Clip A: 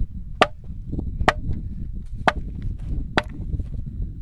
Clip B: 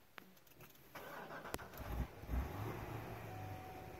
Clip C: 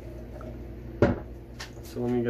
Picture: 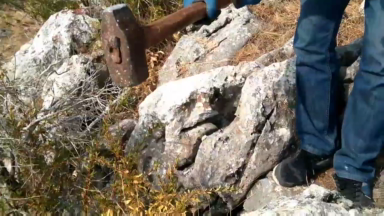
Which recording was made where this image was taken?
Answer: A